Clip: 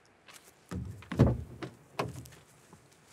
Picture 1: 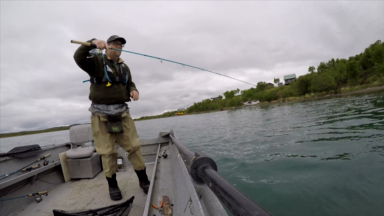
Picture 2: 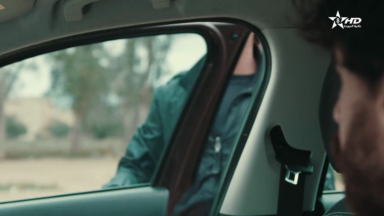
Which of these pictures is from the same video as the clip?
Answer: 2